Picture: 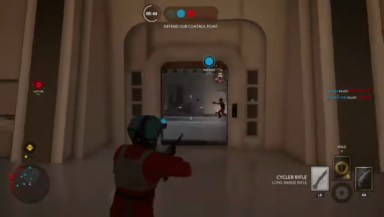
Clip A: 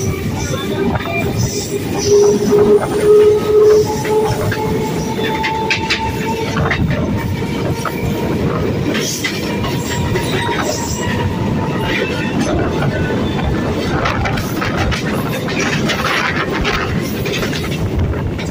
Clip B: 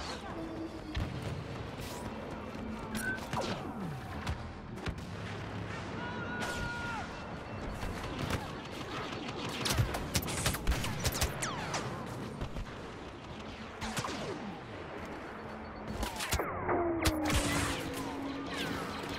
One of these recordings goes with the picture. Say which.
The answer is B